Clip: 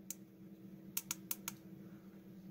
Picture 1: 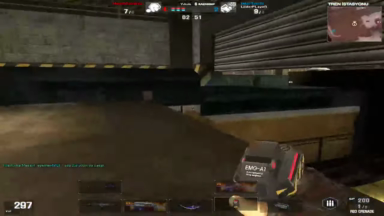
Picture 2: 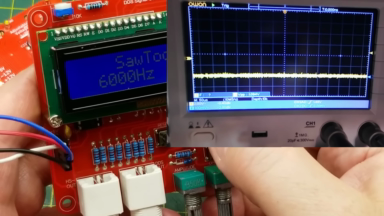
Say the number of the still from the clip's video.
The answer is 2